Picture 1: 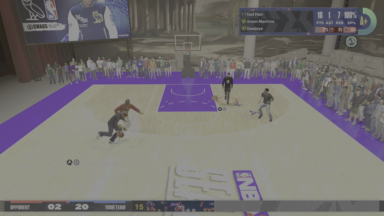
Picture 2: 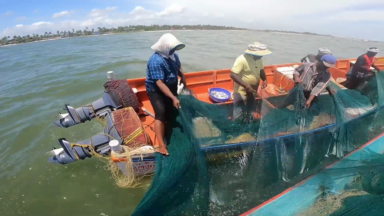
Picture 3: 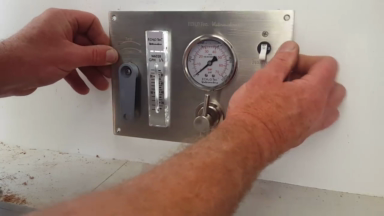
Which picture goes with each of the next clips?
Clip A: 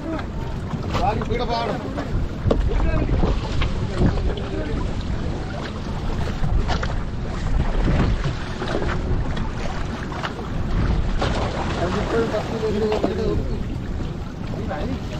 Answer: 2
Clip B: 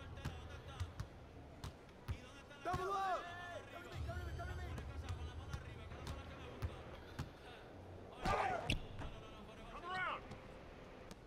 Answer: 1